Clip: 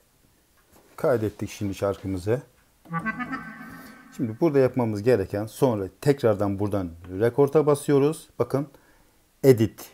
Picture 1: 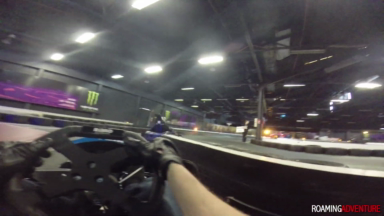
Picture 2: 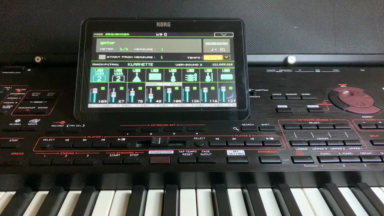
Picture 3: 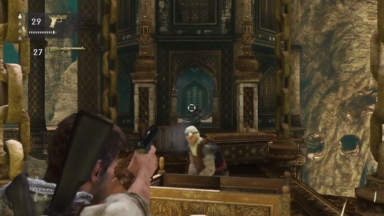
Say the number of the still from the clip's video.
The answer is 2